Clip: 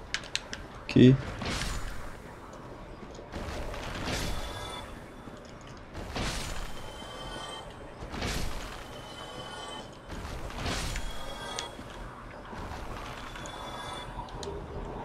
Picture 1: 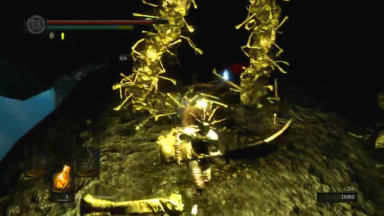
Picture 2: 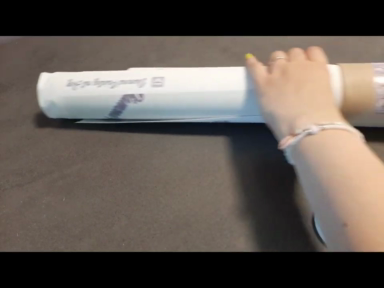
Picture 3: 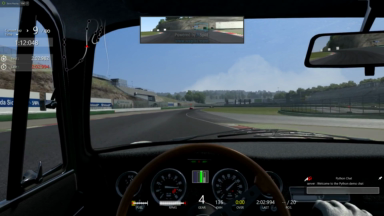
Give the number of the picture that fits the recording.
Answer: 1